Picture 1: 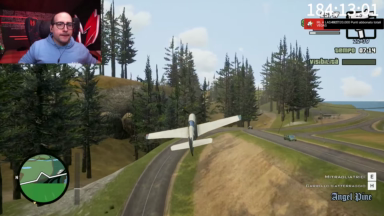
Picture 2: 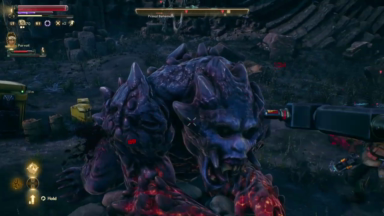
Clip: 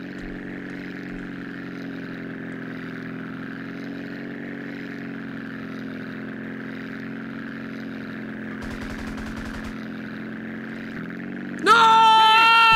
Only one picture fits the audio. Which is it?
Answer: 1